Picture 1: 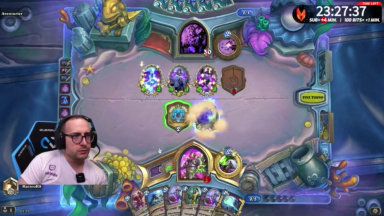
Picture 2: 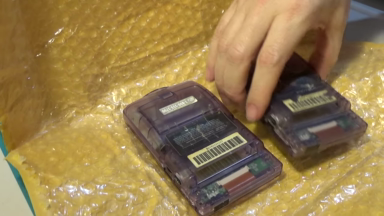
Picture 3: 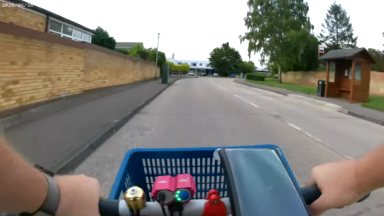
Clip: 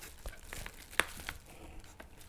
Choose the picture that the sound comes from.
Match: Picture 2